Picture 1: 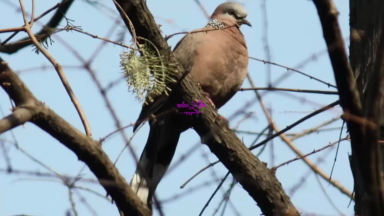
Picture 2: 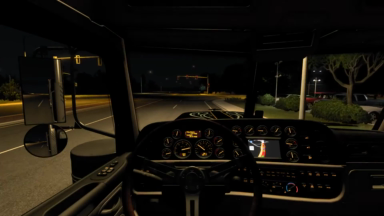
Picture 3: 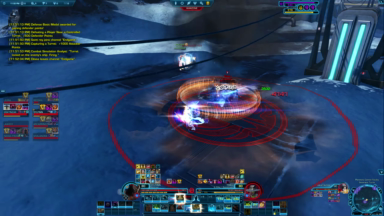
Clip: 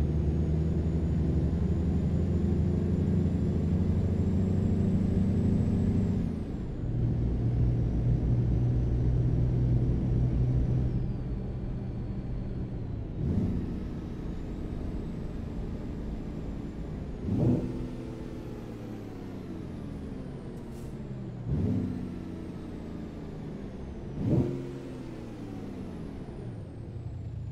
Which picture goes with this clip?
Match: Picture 2